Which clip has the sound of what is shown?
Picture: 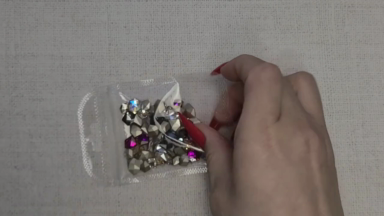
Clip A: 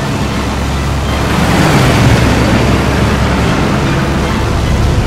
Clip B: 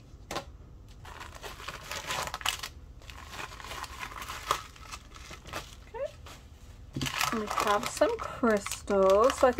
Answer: B